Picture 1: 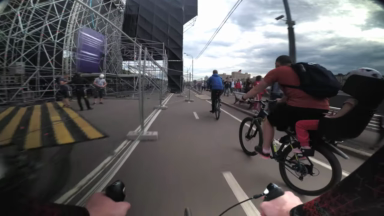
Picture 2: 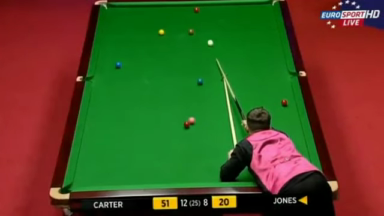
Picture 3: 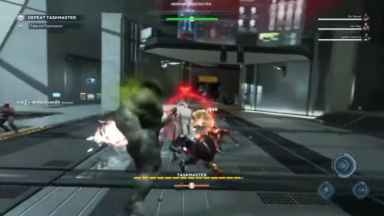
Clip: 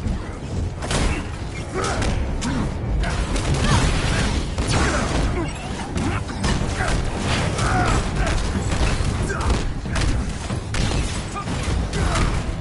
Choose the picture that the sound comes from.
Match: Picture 3